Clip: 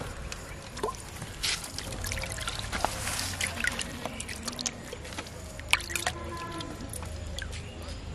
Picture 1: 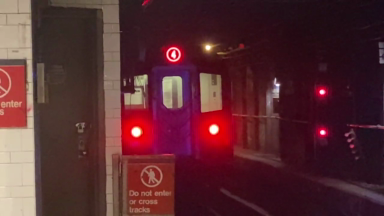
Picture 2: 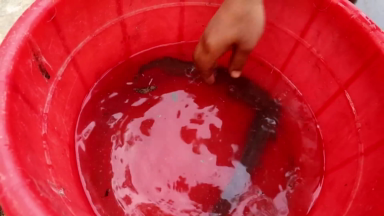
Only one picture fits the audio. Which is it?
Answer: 2